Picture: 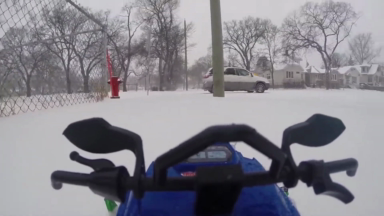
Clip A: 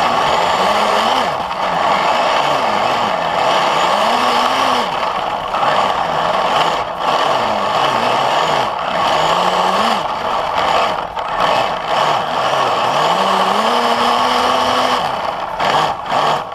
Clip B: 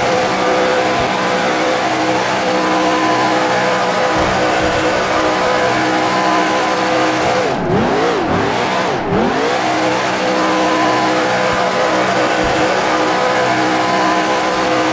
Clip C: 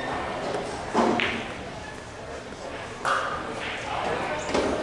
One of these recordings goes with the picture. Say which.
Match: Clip A